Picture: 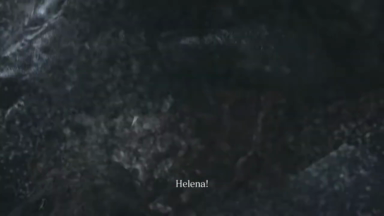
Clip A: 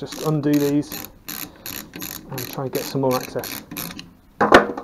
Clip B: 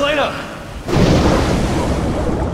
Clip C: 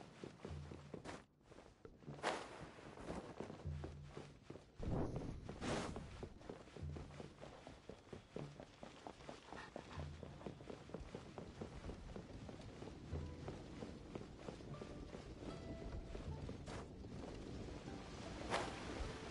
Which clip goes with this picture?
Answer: B